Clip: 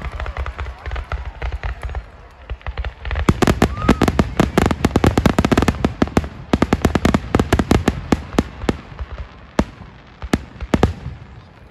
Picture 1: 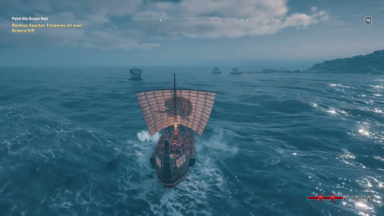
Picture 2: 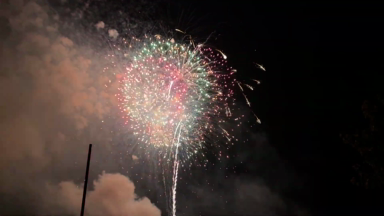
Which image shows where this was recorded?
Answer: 2